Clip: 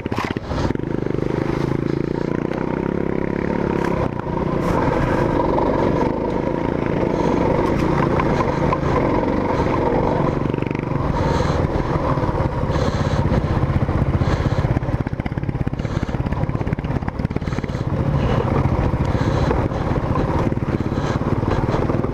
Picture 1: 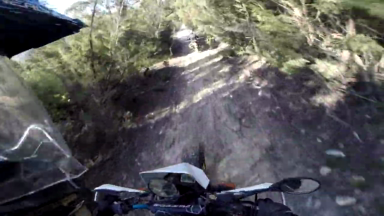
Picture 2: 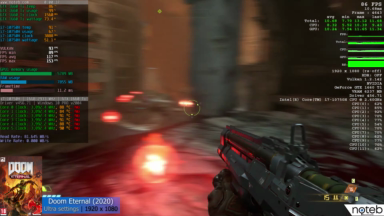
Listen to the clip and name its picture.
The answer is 1